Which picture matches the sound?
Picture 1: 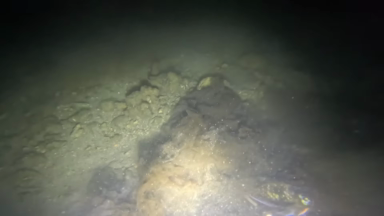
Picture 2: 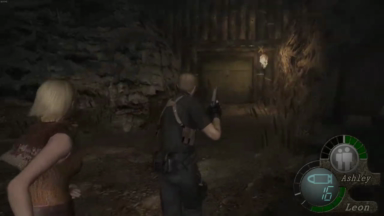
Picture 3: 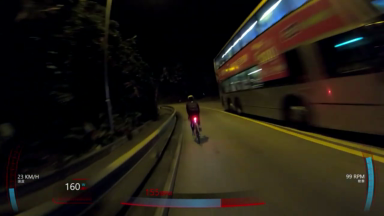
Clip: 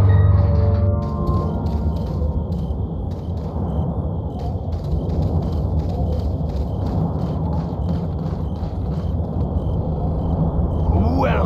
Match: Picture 2